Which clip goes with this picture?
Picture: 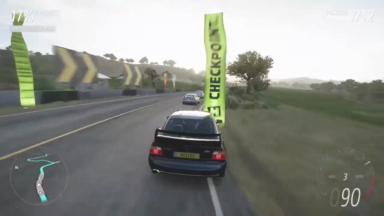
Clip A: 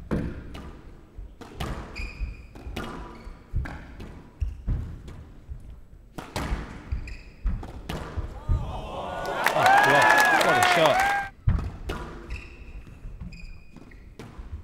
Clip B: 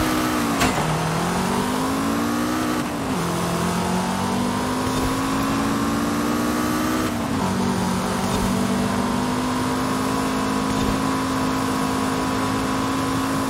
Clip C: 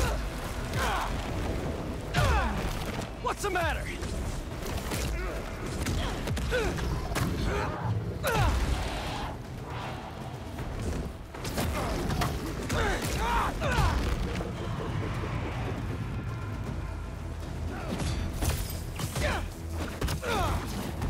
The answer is B